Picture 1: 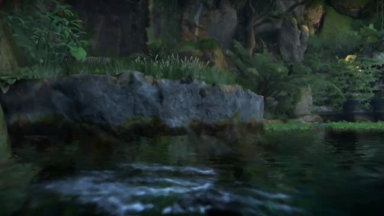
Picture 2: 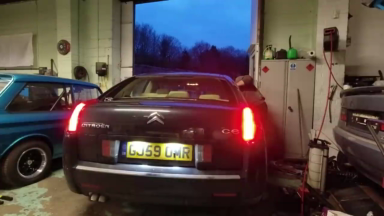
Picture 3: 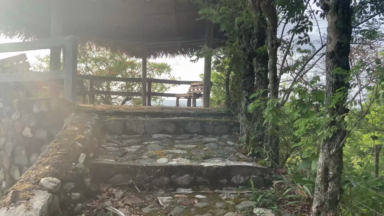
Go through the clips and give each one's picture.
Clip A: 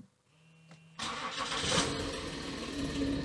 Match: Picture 2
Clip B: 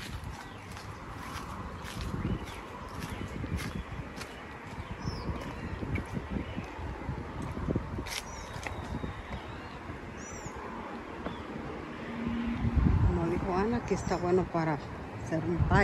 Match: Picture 3